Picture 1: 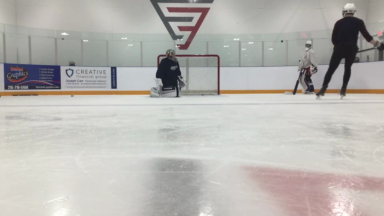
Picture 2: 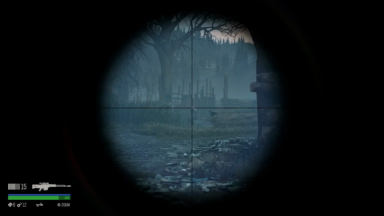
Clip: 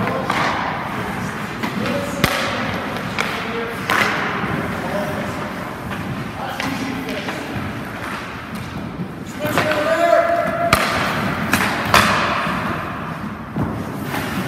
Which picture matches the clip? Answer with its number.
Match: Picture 1